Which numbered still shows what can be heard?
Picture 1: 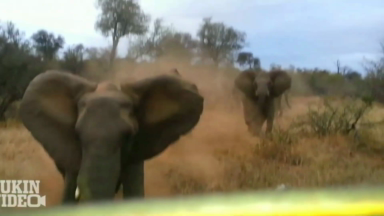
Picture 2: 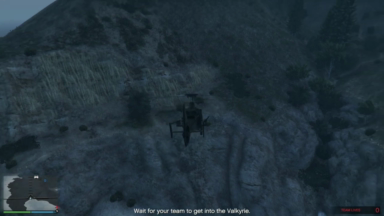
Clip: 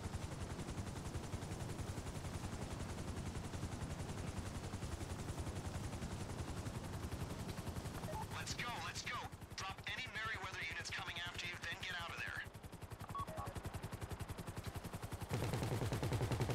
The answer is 2